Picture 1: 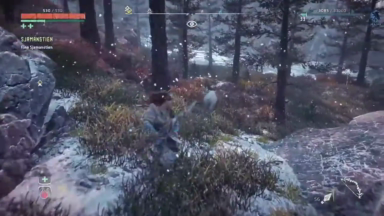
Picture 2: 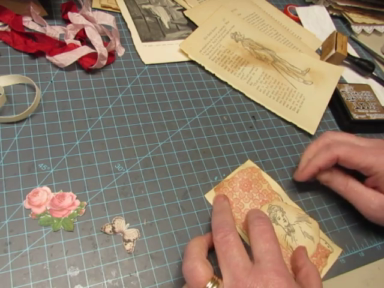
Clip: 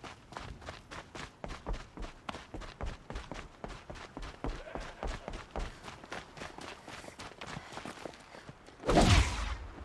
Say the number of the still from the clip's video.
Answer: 1